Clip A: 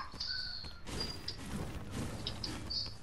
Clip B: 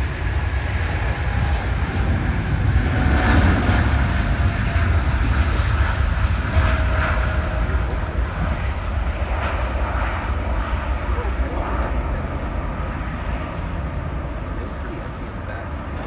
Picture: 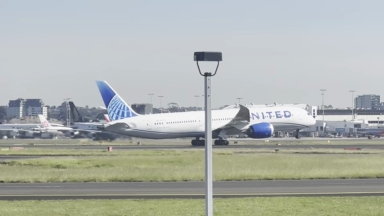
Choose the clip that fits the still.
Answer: B